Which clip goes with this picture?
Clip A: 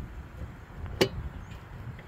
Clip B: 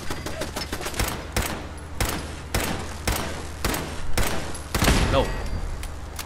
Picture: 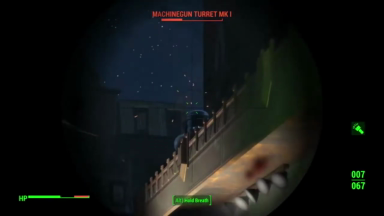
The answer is B